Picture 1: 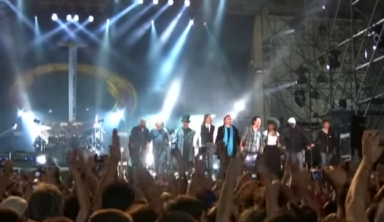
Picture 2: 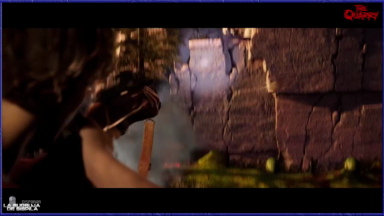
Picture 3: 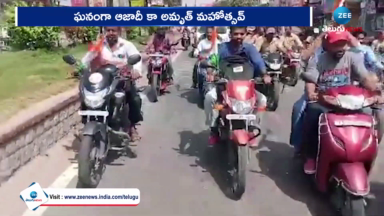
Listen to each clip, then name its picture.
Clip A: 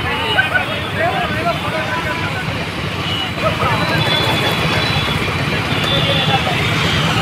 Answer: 3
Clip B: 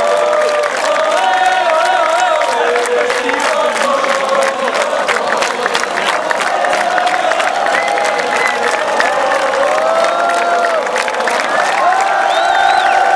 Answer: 1